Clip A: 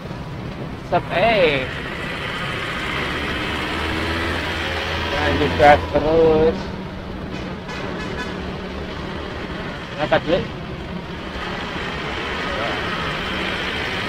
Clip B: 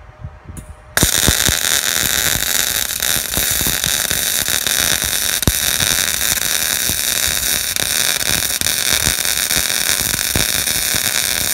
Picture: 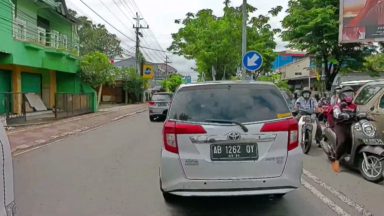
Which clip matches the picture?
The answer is A